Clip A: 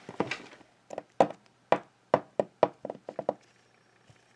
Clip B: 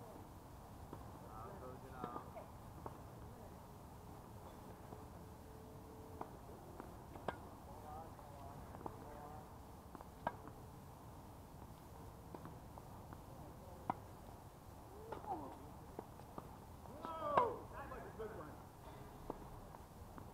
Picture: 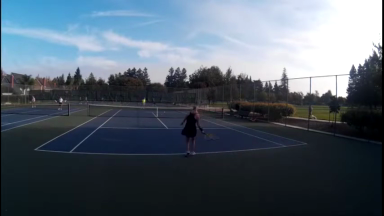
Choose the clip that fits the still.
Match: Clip B